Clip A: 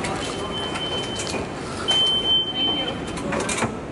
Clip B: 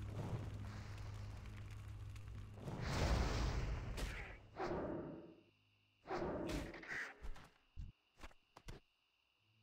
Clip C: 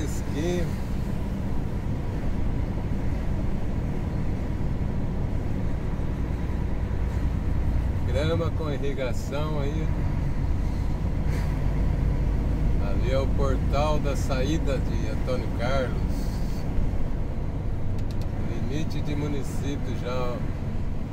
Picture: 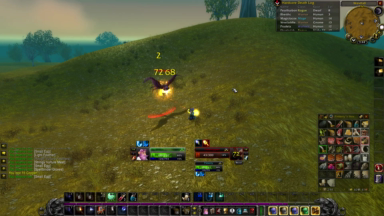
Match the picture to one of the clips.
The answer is B